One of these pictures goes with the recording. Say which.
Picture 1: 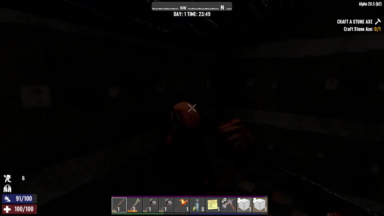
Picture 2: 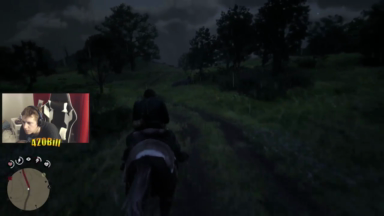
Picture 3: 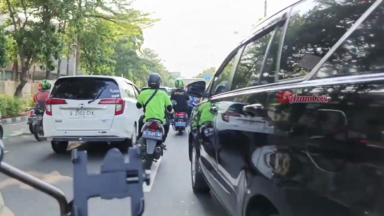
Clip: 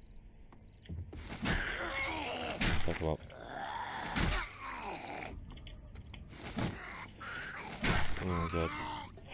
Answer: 1